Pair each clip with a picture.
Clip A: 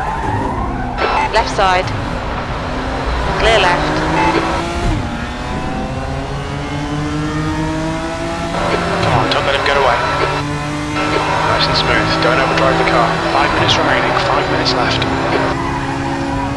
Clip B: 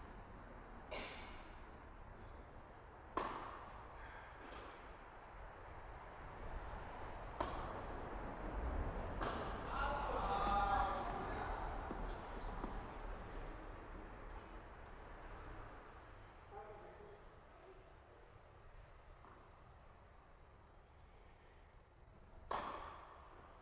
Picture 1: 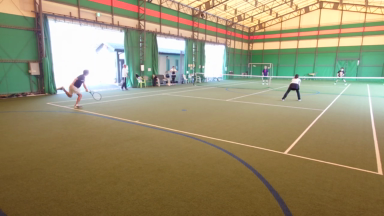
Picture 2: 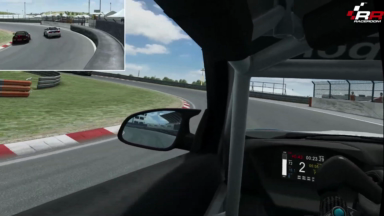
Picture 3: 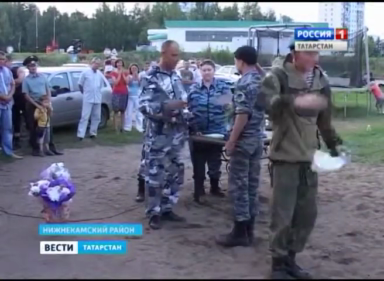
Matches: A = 2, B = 1